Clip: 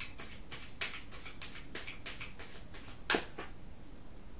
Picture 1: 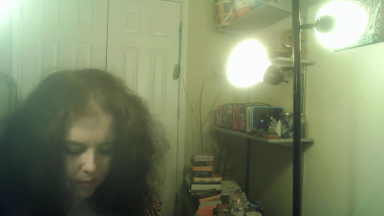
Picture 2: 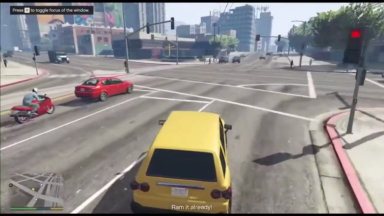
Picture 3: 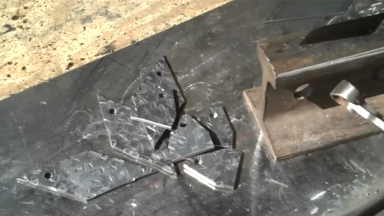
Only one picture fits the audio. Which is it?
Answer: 1